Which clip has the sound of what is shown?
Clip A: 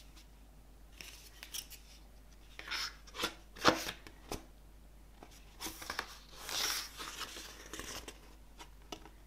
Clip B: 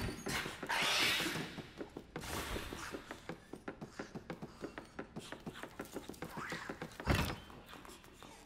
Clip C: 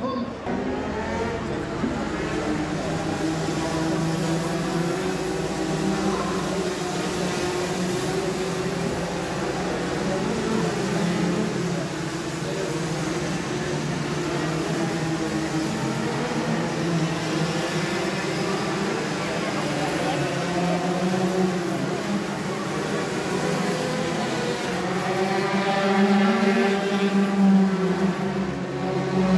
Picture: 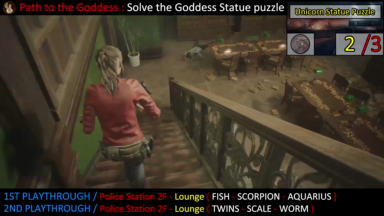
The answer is B